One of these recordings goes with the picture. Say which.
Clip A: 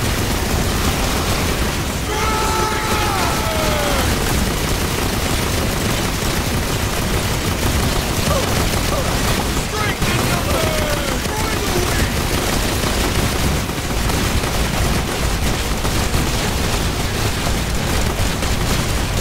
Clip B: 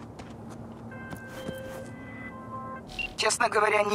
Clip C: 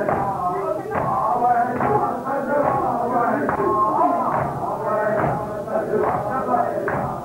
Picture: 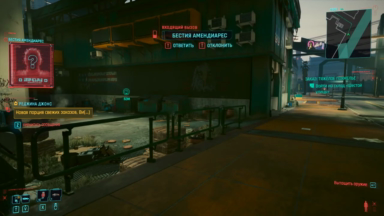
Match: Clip B